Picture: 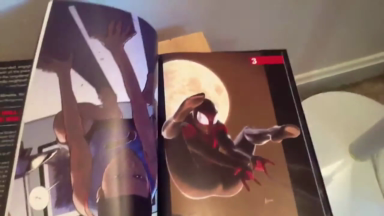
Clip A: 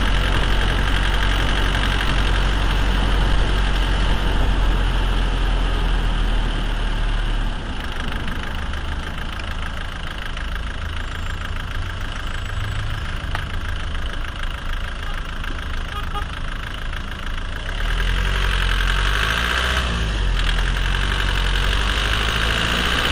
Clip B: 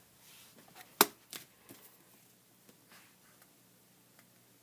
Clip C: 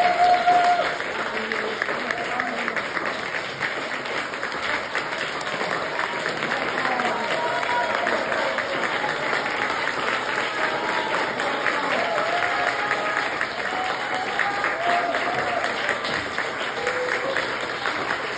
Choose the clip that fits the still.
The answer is B